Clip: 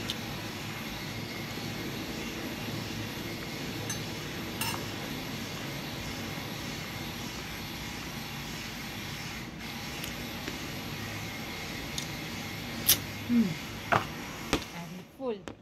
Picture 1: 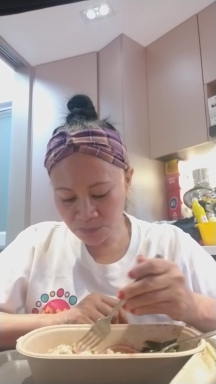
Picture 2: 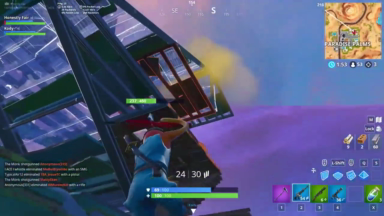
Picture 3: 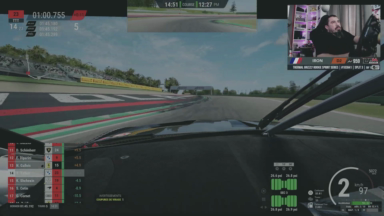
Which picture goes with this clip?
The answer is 1